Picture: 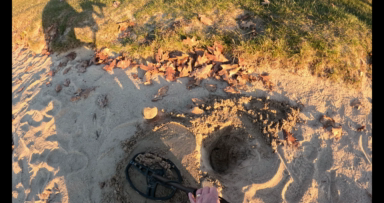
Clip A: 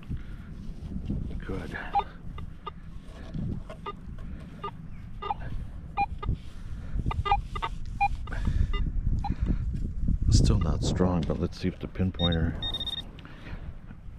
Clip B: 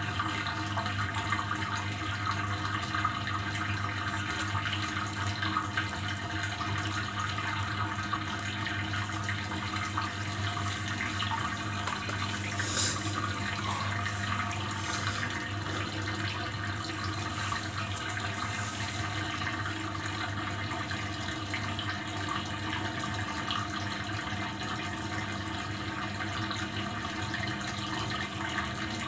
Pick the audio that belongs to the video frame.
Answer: A